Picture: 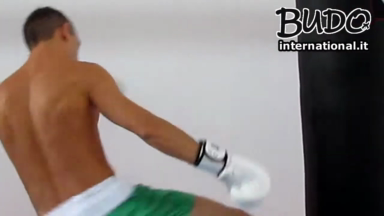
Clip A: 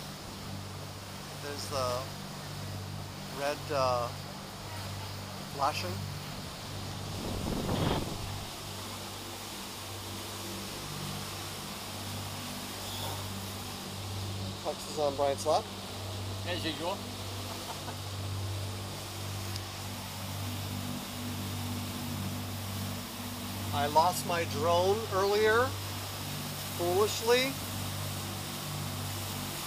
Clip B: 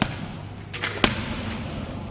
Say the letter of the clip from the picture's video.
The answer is B